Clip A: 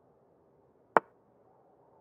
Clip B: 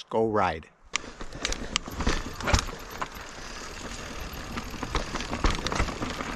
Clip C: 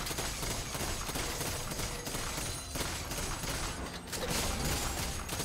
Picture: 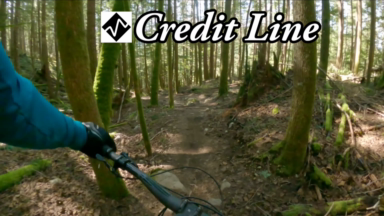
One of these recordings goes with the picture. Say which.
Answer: B